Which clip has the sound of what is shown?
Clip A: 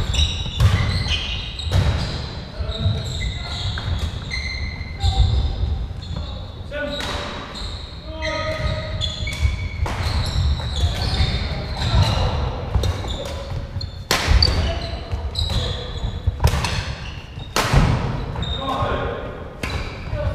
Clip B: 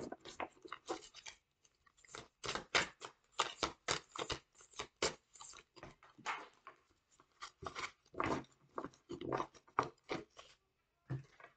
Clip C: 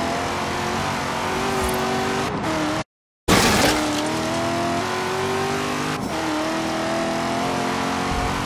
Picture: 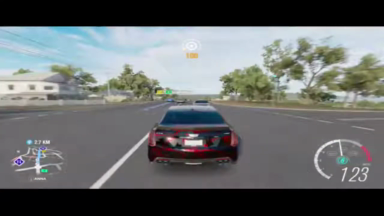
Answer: C